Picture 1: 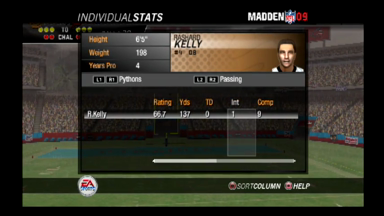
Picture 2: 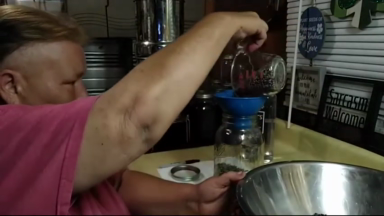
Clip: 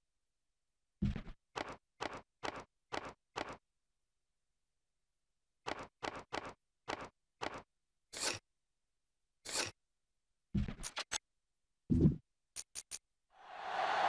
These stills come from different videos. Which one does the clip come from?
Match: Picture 1